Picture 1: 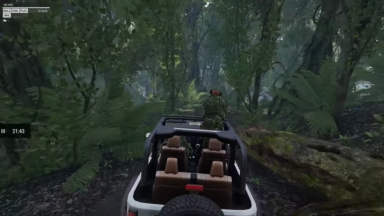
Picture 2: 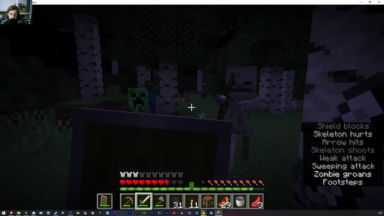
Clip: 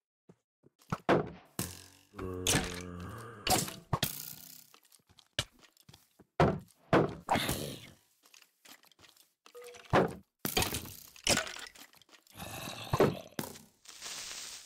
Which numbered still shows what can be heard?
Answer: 2